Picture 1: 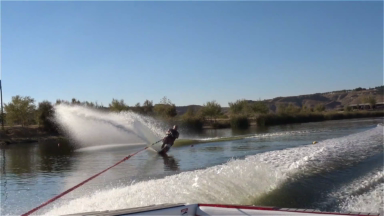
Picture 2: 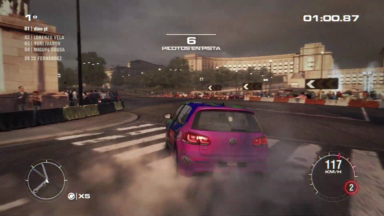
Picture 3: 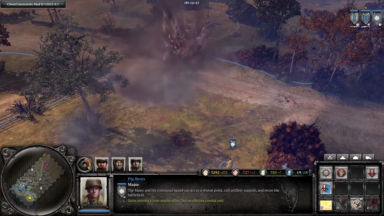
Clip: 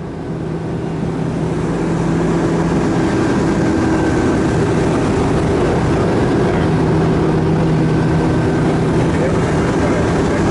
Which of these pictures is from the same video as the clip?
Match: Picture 1